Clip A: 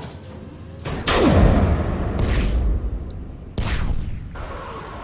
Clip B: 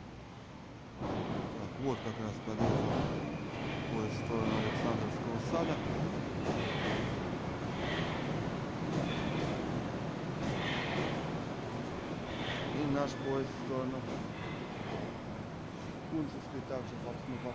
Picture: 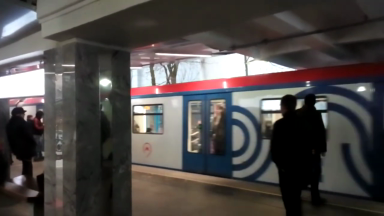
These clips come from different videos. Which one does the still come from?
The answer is B